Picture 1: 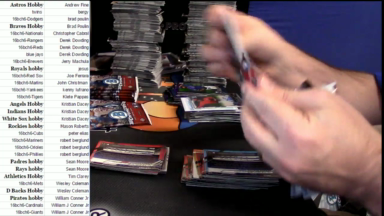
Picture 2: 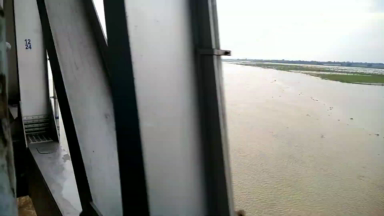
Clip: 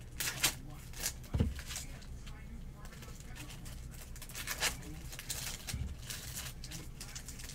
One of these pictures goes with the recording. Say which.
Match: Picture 1